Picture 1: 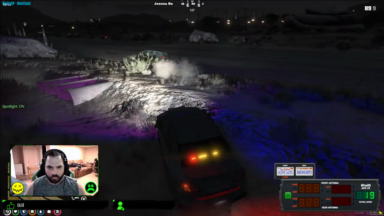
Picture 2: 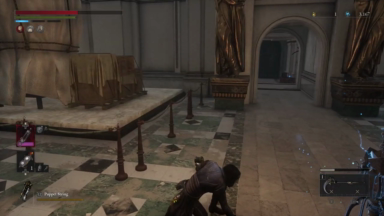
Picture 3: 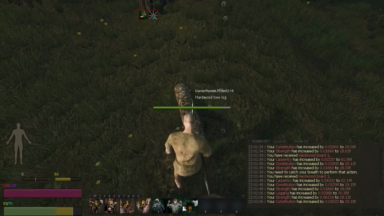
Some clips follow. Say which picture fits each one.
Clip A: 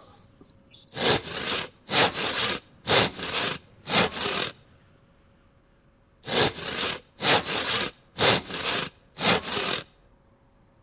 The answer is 3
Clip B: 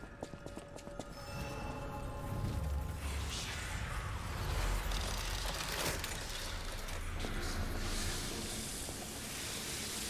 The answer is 2